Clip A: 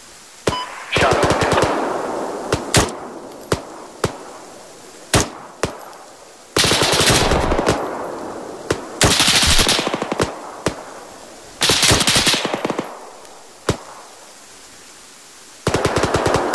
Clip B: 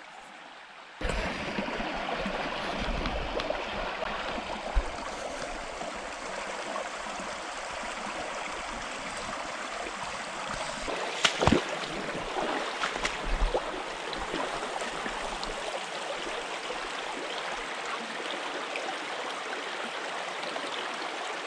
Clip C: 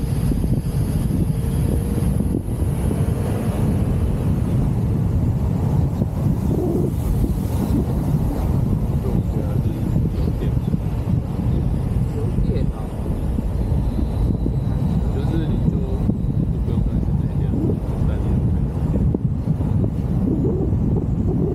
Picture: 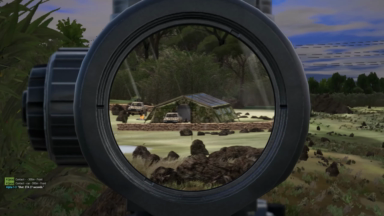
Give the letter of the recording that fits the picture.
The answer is A